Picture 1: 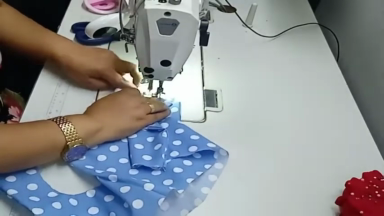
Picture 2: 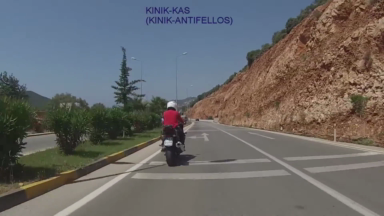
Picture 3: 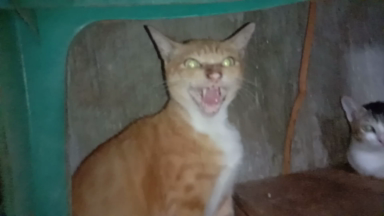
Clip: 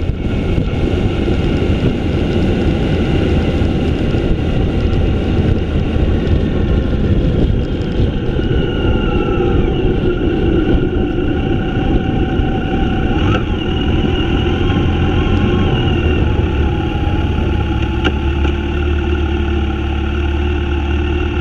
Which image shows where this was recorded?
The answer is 2